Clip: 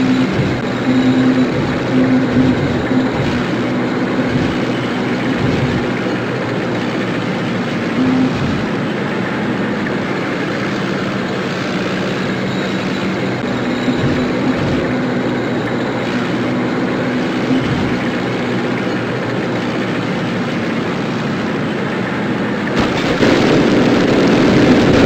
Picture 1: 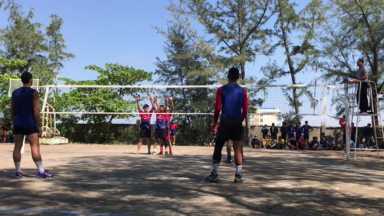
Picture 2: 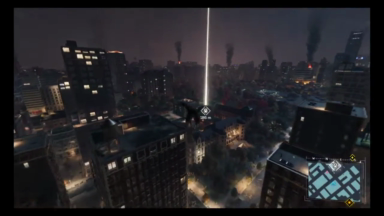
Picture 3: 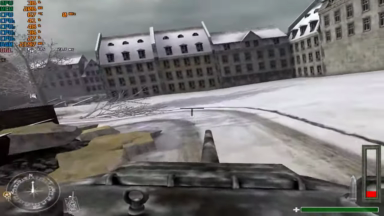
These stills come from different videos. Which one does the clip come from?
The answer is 3